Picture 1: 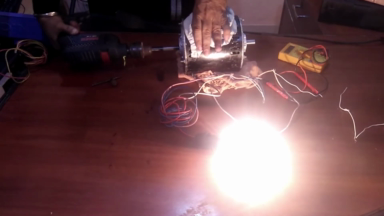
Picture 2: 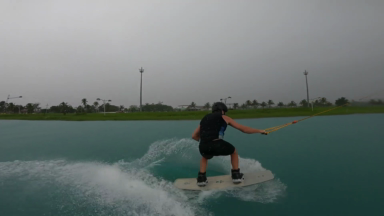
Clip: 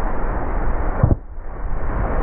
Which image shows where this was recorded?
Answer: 2